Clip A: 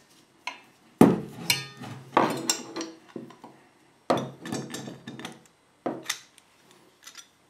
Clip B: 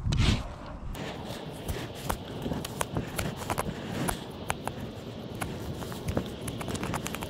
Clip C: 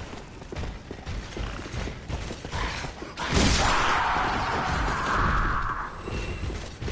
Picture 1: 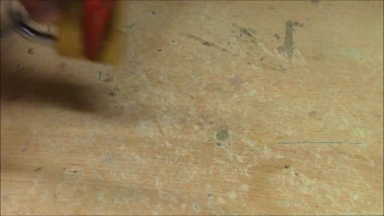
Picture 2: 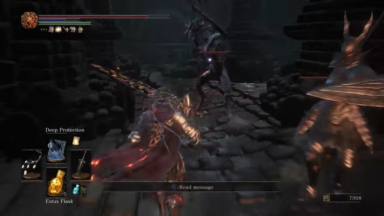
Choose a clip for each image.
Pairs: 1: A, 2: C